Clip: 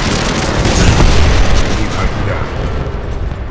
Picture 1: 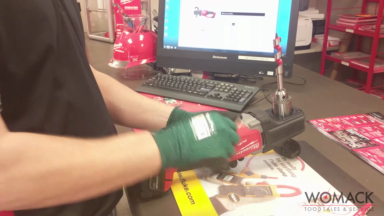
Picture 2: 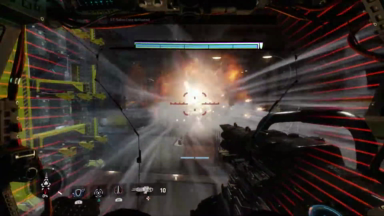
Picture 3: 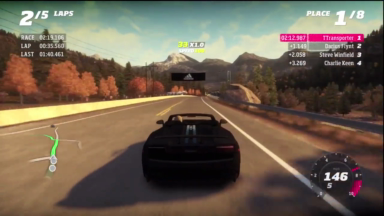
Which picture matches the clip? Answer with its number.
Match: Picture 2